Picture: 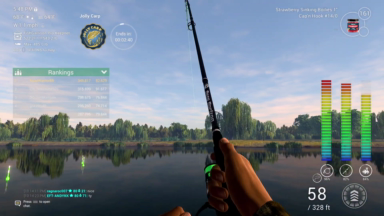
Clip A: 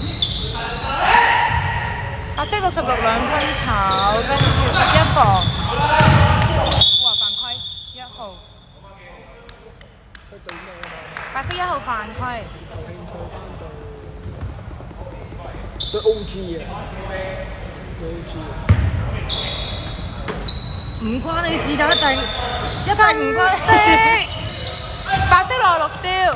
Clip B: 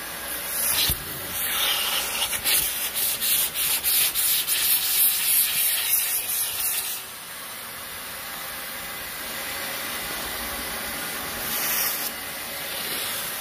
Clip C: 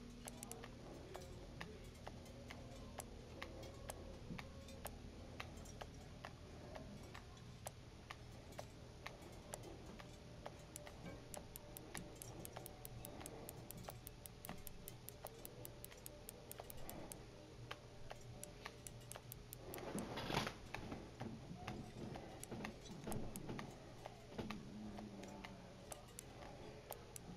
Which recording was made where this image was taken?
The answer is C